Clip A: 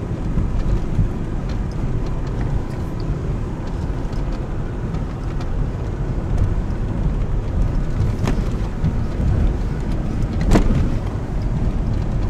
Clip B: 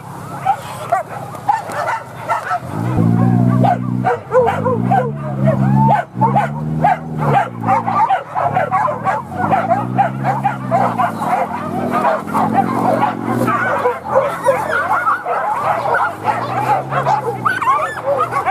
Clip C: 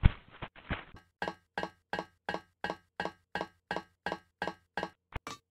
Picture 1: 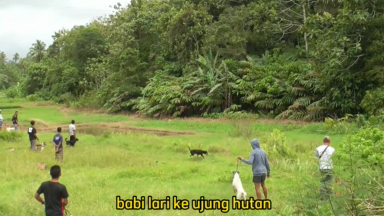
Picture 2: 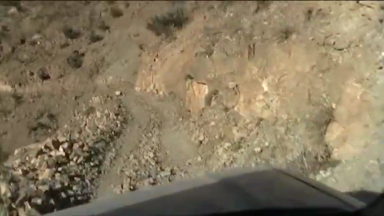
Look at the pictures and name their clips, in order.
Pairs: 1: B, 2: A